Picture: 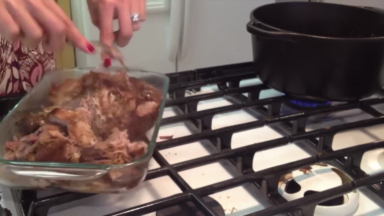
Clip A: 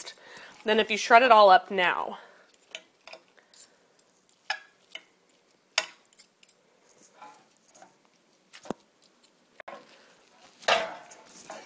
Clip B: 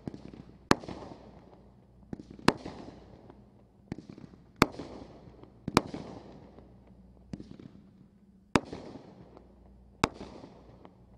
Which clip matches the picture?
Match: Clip A